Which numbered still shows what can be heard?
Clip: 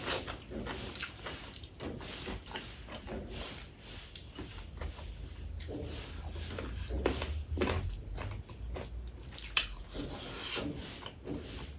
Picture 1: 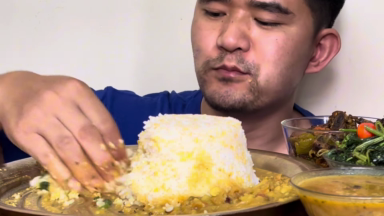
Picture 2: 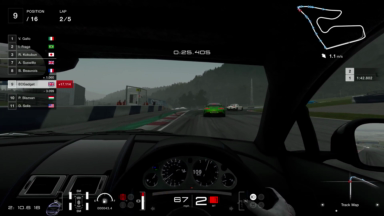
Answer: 1